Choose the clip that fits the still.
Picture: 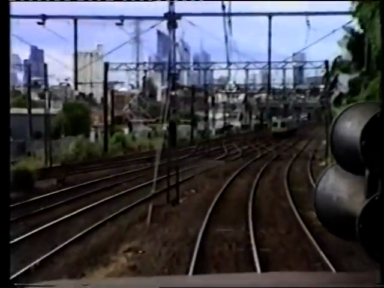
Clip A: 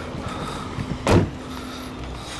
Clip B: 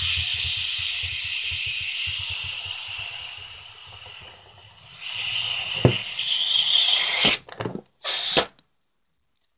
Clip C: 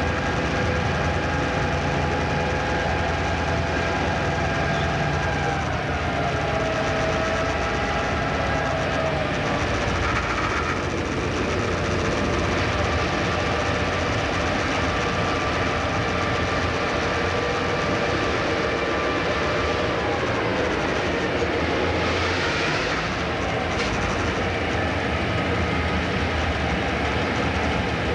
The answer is C